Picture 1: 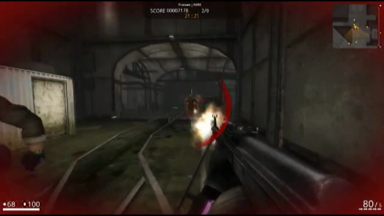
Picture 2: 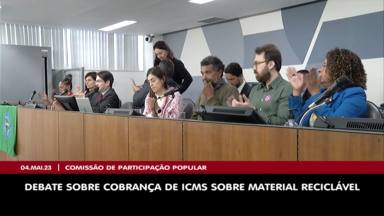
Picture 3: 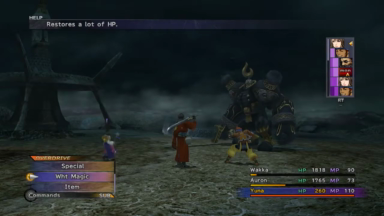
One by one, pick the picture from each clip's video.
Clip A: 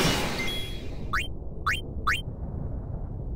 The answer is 3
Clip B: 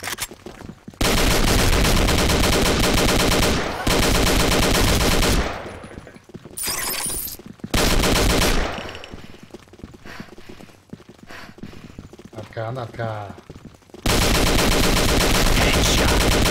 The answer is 1